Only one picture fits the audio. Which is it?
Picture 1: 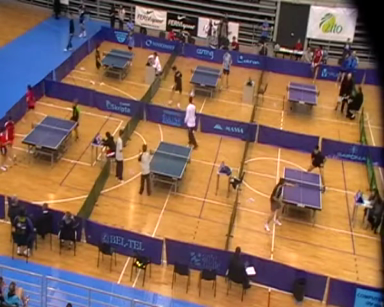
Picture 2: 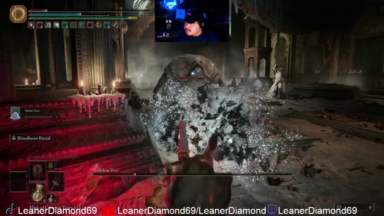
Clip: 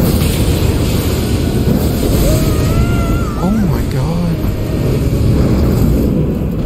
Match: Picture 2